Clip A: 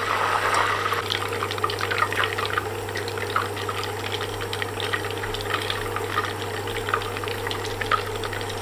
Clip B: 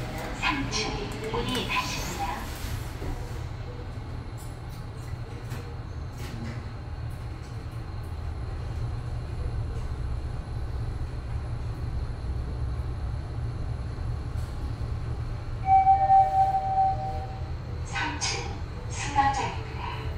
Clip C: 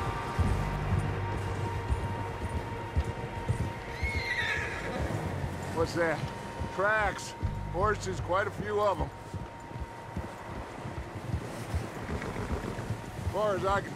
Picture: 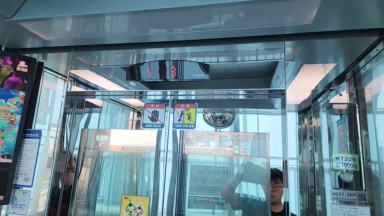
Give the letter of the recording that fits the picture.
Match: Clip B